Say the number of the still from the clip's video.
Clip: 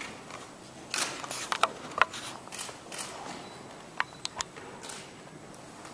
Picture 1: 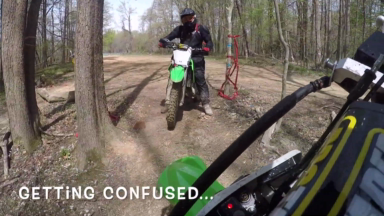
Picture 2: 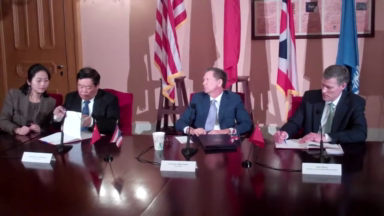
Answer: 2